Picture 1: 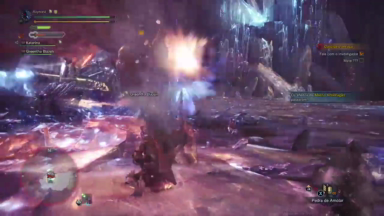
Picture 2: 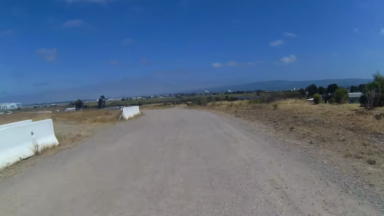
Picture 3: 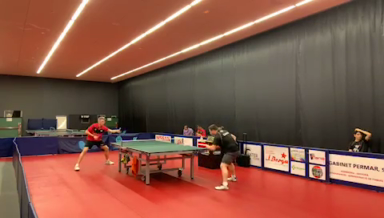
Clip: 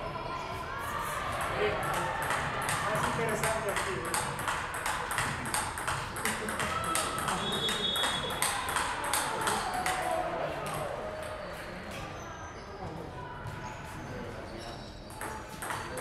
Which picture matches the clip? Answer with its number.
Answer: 3